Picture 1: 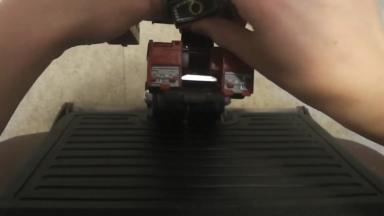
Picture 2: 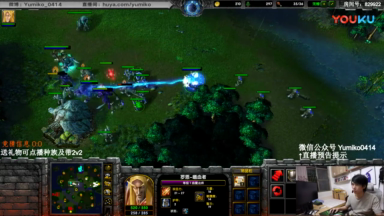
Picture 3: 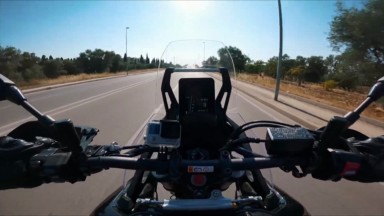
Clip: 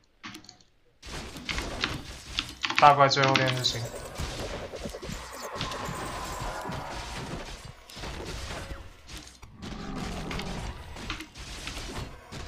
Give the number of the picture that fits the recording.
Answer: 2